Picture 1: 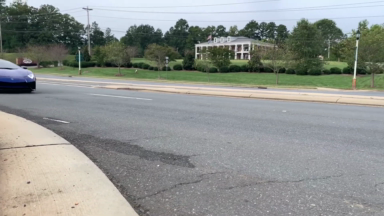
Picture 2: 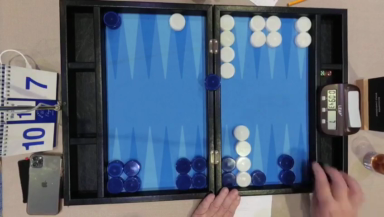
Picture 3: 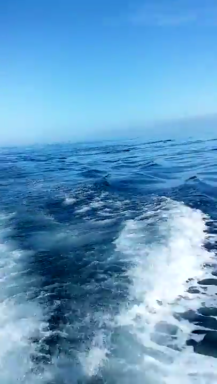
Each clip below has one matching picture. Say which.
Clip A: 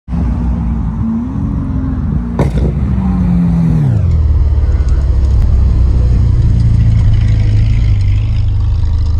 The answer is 1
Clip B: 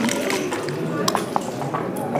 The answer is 2